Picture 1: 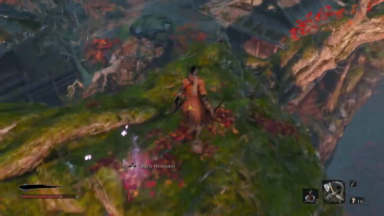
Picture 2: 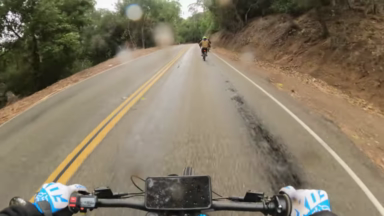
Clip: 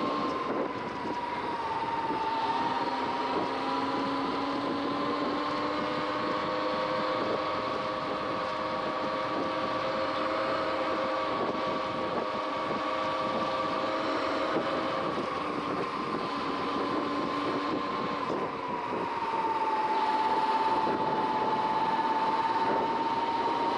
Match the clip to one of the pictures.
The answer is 2